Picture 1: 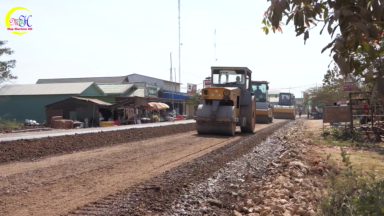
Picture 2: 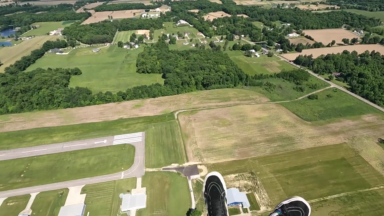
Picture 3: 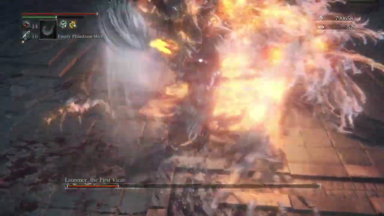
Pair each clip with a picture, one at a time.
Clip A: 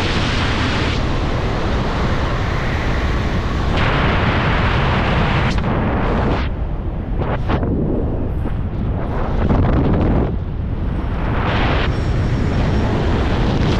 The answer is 2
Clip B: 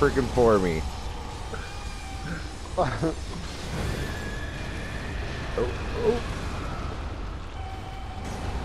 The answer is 3